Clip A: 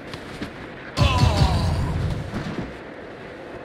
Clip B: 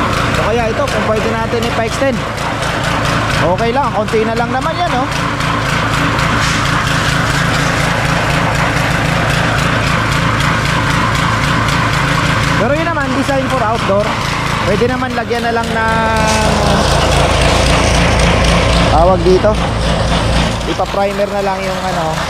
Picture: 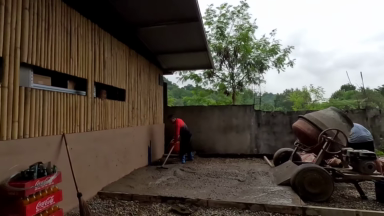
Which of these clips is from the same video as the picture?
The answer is B